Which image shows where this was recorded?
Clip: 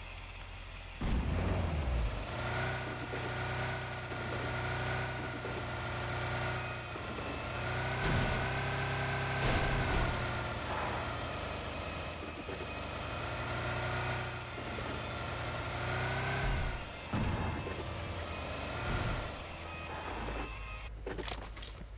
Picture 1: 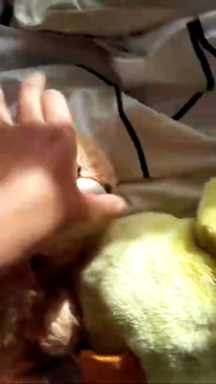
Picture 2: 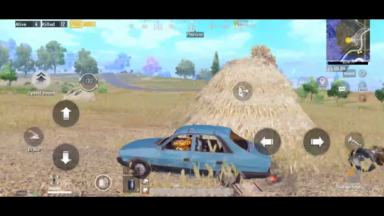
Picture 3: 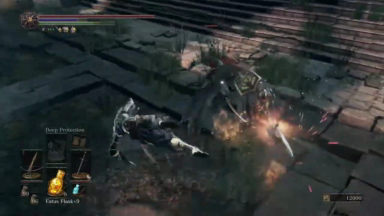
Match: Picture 2